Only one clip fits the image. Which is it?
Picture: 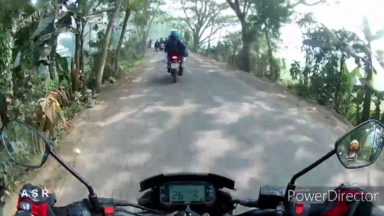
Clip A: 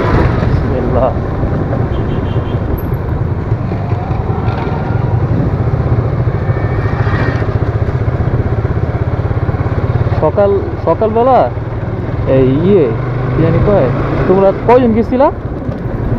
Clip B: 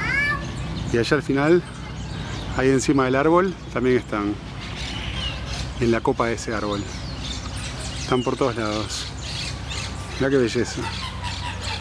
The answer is A